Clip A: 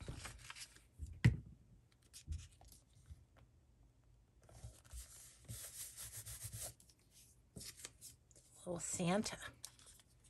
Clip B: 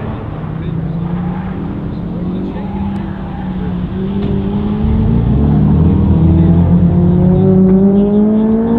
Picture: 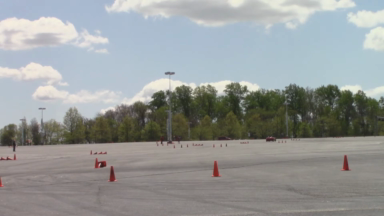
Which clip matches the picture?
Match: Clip B